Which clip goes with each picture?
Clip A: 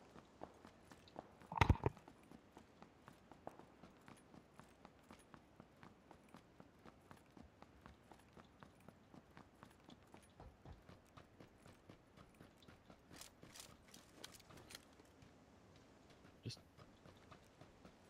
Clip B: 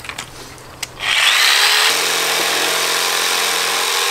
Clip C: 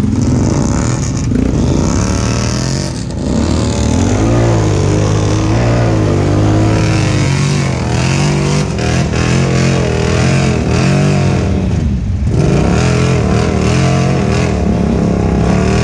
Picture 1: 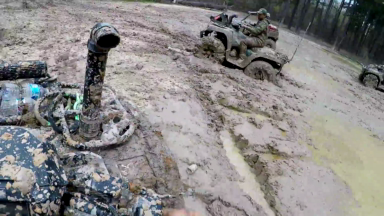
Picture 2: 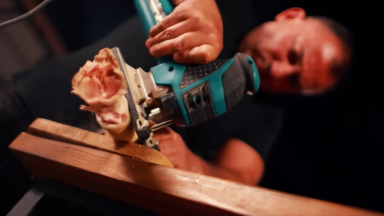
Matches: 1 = C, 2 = B